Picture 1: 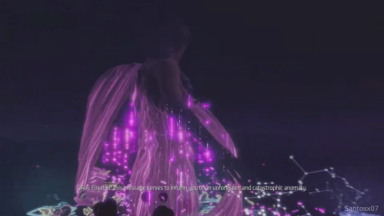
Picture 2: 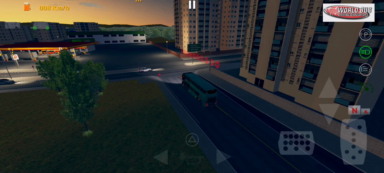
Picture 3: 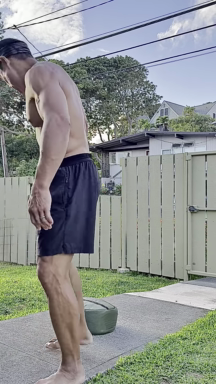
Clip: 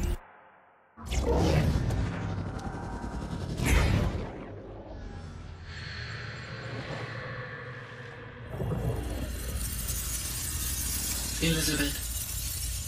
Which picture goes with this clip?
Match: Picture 1